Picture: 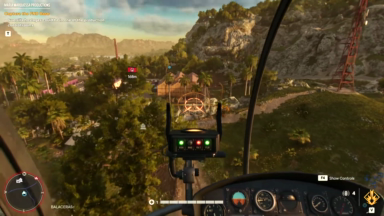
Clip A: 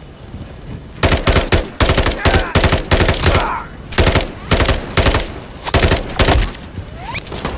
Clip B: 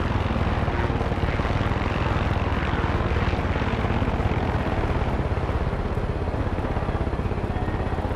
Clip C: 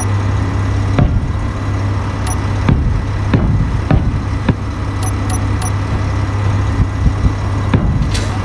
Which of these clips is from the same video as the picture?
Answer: B